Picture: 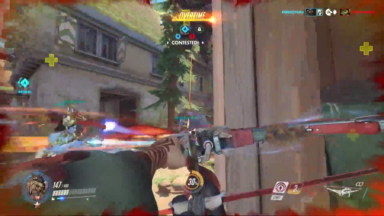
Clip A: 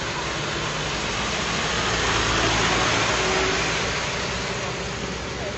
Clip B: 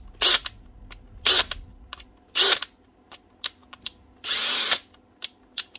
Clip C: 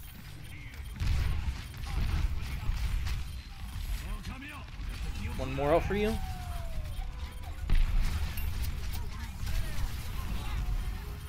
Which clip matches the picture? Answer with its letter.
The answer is C